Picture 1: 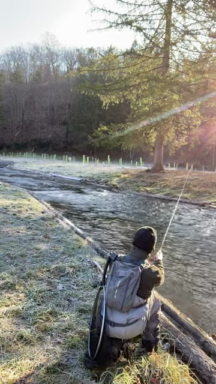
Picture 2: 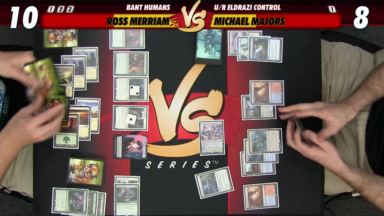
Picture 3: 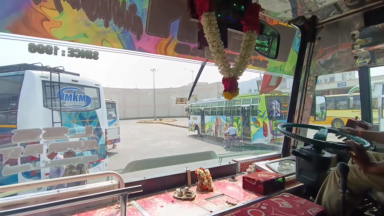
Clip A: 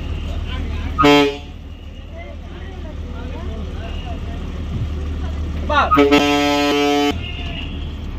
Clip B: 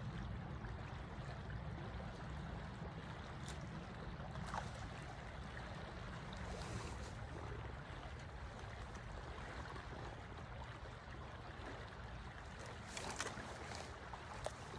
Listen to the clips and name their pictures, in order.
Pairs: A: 3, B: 1